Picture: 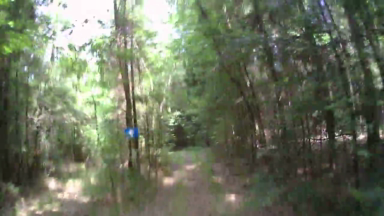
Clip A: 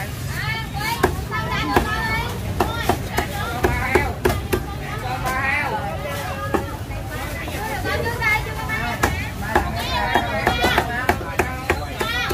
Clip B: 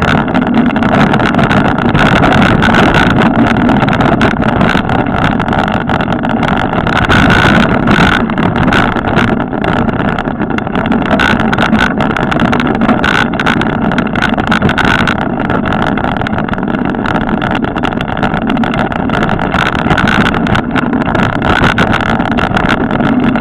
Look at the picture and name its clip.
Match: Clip B